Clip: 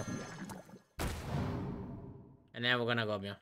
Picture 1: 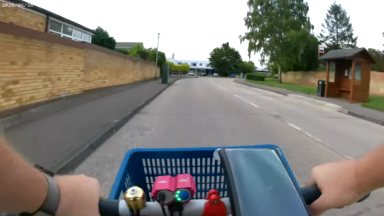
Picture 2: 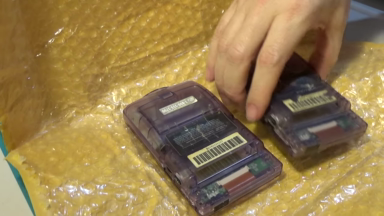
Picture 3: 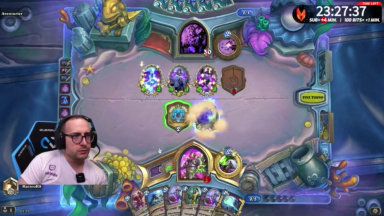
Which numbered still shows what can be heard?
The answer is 3